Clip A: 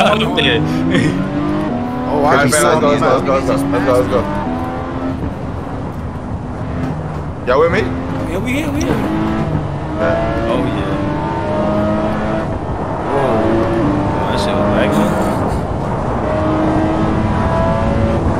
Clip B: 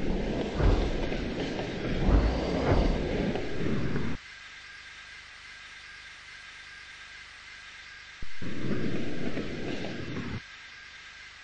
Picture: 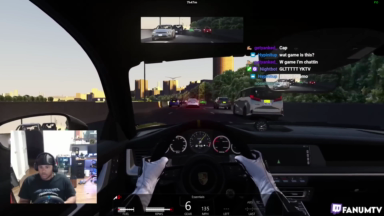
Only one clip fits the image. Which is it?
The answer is A